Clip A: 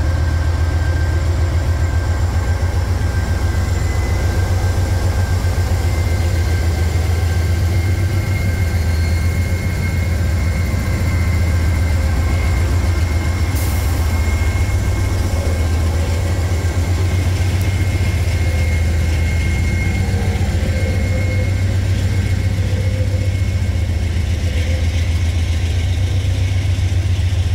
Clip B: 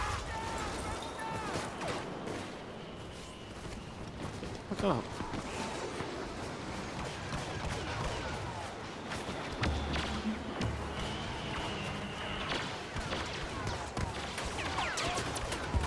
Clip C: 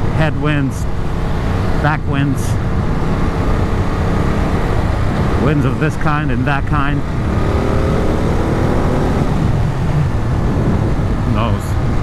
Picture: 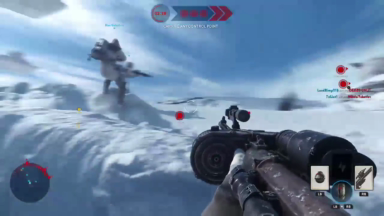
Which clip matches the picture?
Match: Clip B